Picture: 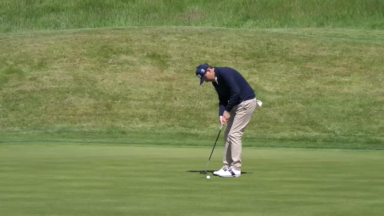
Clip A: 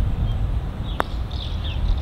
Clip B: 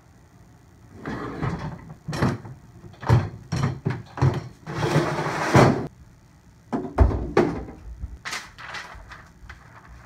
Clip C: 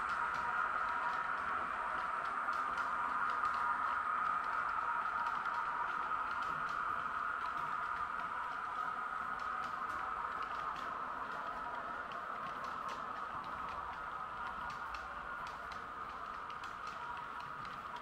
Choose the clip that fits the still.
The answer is A